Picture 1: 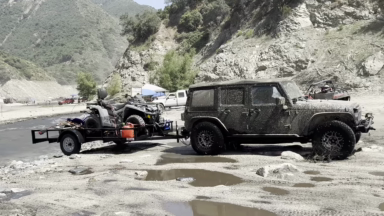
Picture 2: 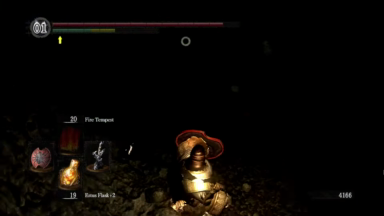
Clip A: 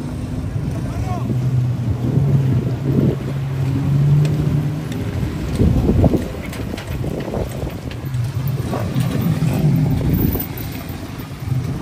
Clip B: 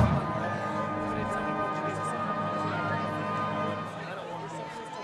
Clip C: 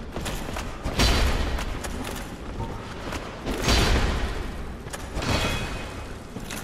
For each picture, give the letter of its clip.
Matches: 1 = A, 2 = C